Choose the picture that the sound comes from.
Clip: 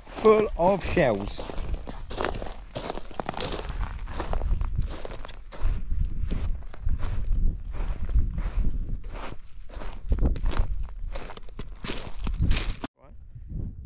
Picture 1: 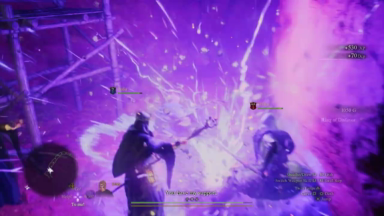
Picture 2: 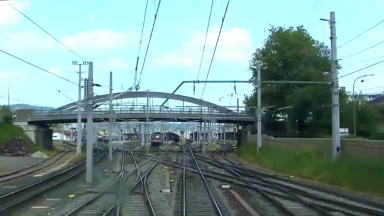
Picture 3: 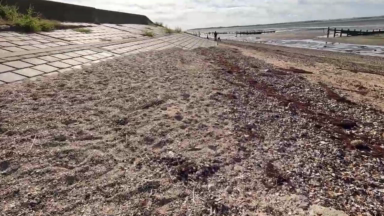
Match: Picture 3